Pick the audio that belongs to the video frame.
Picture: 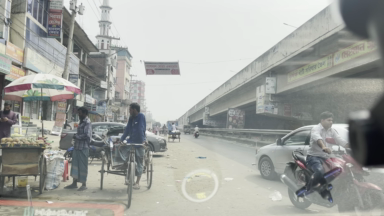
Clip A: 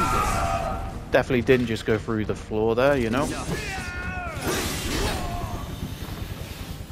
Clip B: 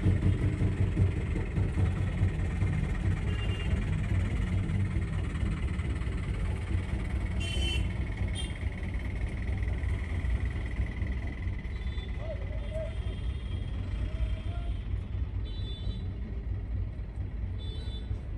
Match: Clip B